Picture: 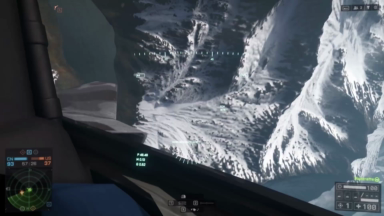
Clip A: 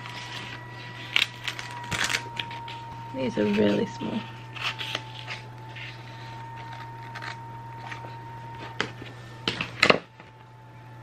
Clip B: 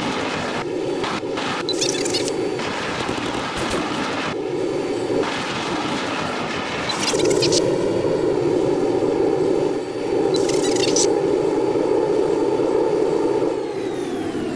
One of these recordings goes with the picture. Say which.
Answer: B